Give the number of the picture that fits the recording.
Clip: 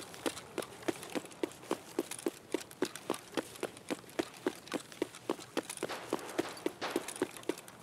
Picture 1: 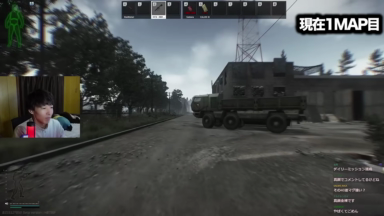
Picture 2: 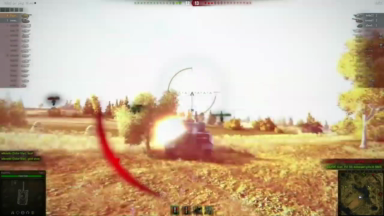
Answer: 1